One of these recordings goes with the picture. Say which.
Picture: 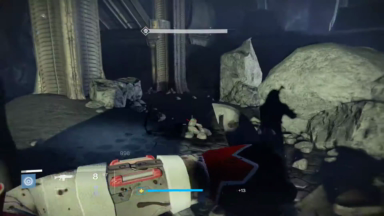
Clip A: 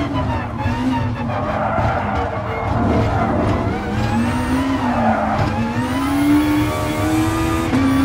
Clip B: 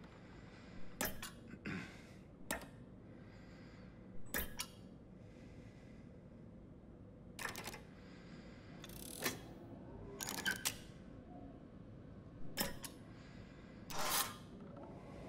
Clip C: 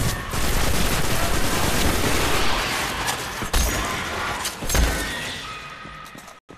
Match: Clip C